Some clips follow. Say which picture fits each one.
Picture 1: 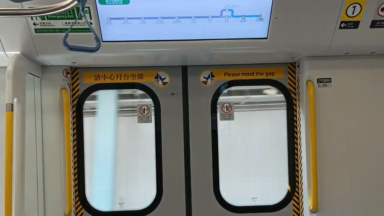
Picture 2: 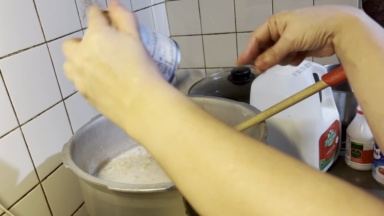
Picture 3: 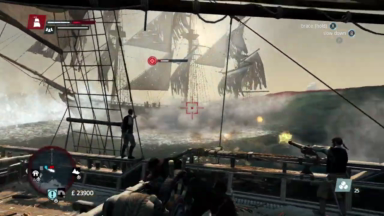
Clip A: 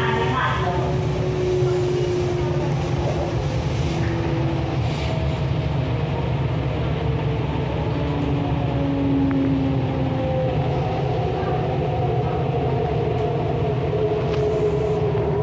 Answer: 1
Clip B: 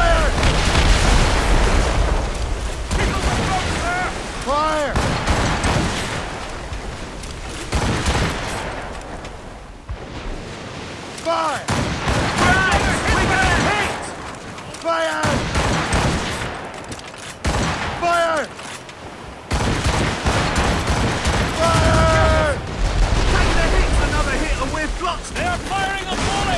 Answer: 3